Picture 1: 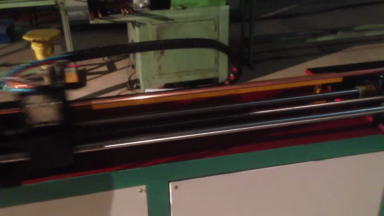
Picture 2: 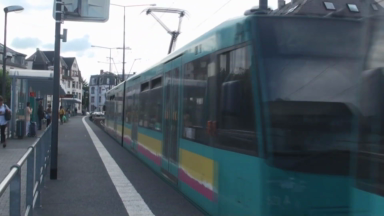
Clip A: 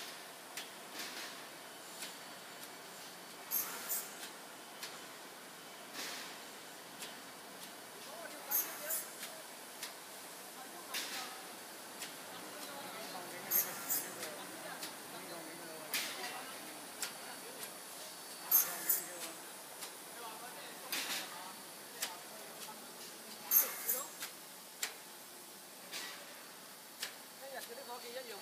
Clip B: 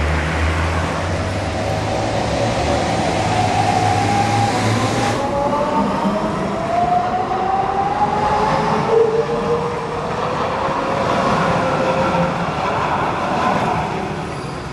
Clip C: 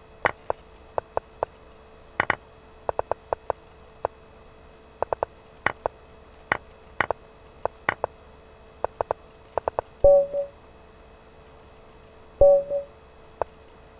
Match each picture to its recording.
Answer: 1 A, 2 B